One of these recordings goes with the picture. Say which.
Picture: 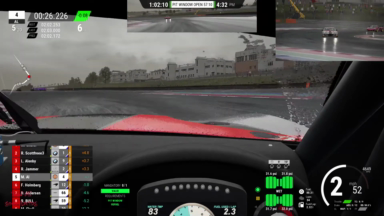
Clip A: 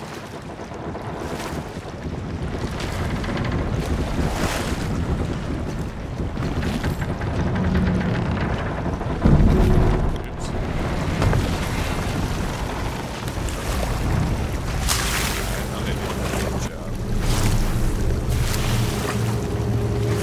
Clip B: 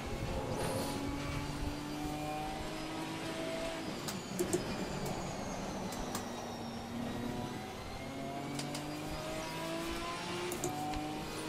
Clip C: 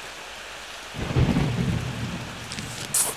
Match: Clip B